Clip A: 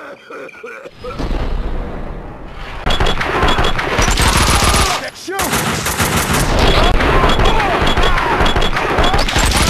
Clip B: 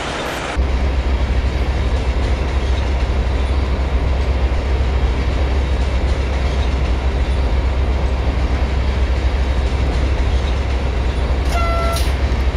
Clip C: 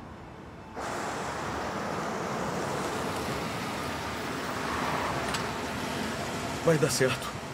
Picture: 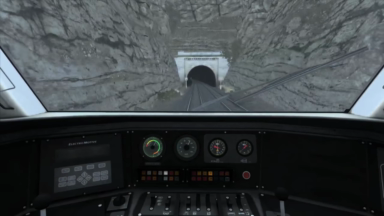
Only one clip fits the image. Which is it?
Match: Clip B